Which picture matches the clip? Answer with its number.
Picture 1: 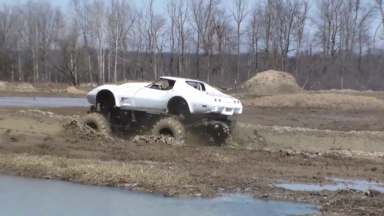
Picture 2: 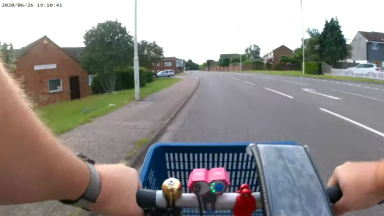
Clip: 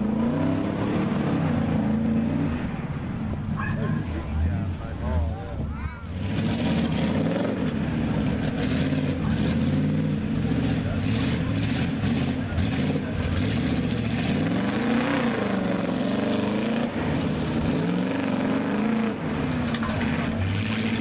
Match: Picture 1